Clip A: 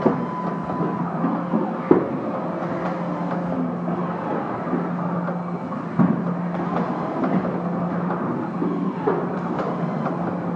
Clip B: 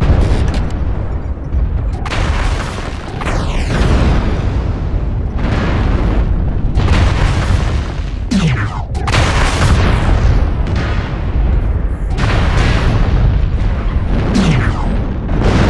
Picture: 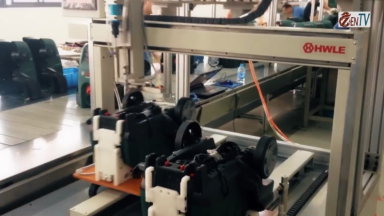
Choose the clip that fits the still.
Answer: A